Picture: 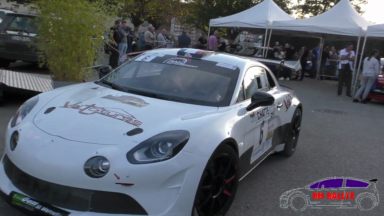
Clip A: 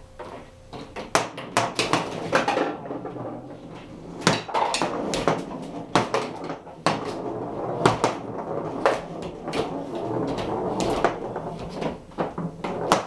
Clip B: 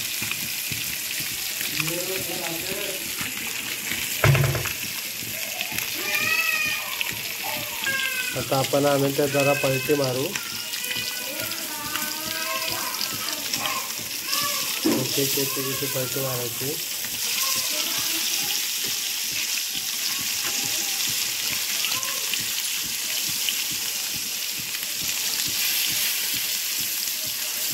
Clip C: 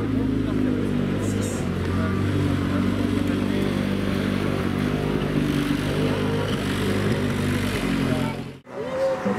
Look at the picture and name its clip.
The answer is C